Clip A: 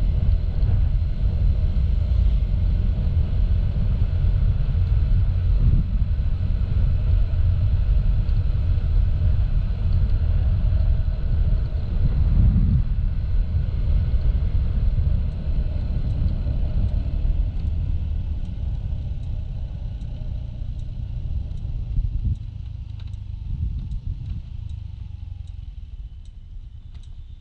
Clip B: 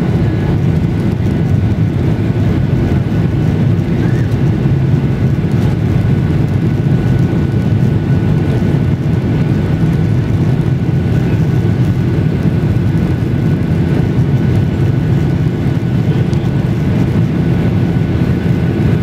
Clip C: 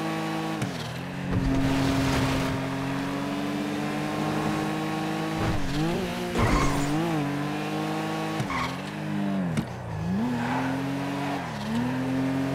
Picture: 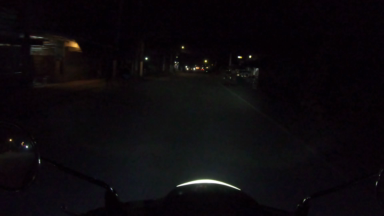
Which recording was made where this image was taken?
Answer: A